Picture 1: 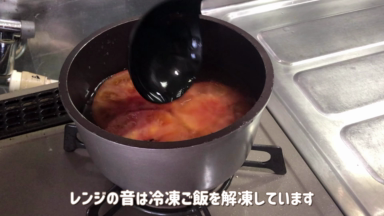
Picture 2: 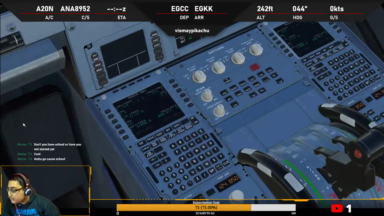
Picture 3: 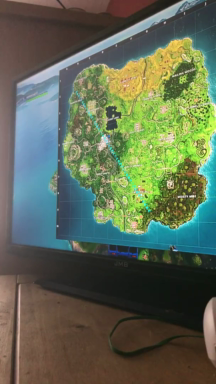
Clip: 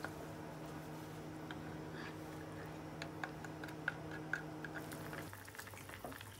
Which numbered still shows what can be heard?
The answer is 1